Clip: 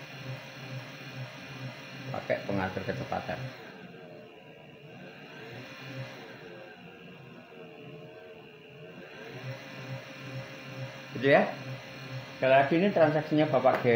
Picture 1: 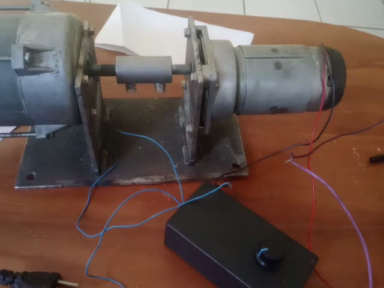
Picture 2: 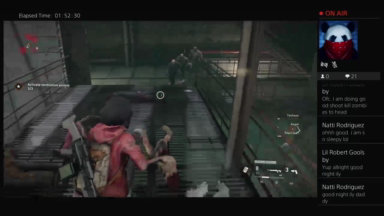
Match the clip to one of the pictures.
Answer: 1